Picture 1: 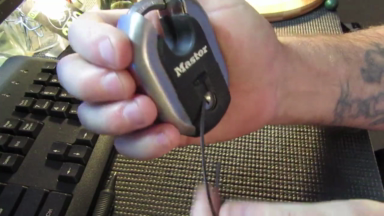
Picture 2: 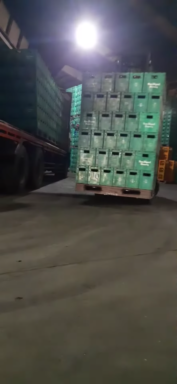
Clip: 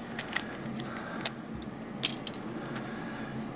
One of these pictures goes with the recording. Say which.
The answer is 1